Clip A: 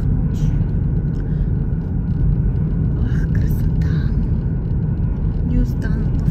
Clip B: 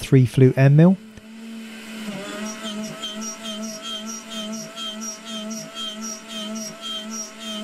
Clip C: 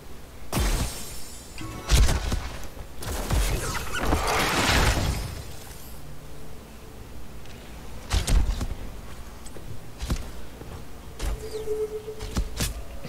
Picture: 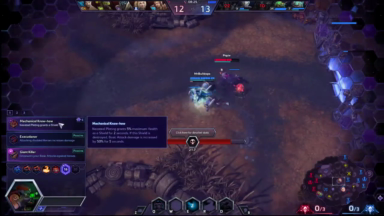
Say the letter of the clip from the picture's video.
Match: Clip C